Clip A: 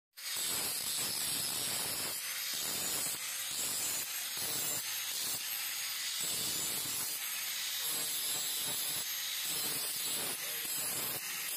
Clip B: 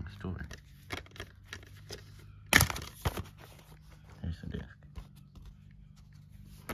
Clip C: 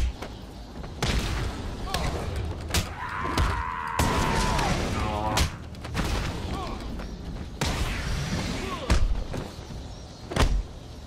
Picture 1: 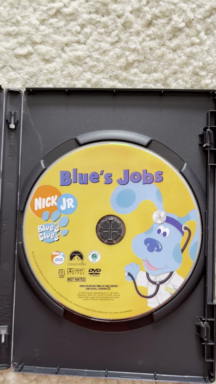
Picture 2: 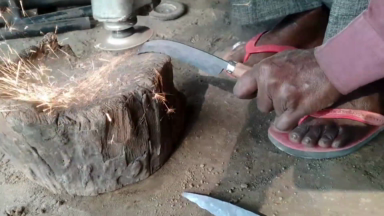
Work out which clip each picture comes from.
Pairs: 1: B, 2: A